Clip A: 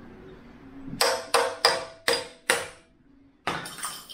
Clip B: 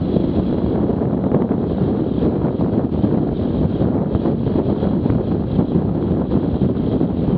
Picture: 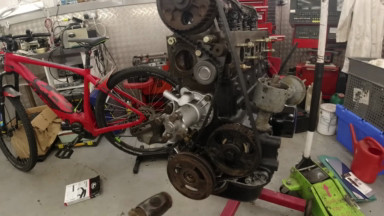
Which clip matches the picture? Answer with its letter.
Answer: A